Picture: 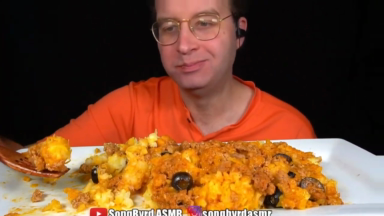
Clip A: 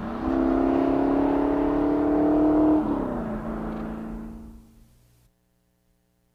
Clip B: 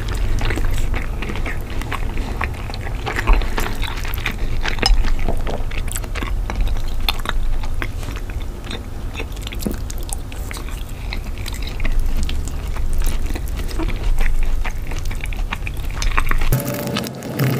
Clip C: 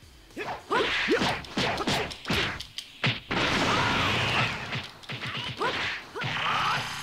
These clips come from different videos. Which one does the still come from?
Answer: B